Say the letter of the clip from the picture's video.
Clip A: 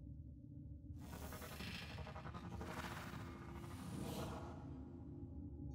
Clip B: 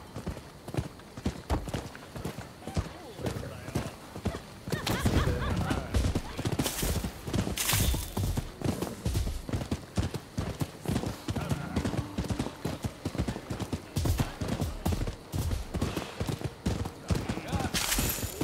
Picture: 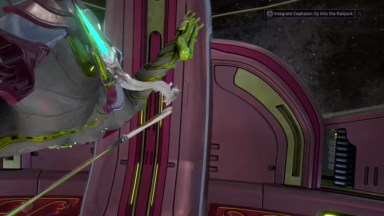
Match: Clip A